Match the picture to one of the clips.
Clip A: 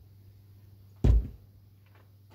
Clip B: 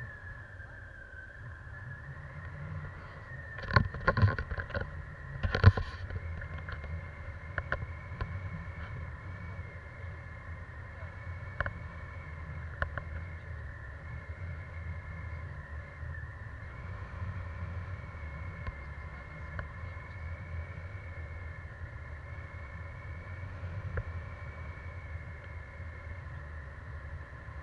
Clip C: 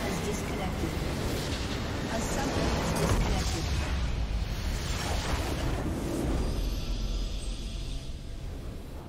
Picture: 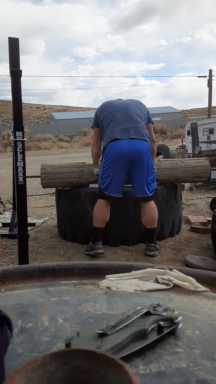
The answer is A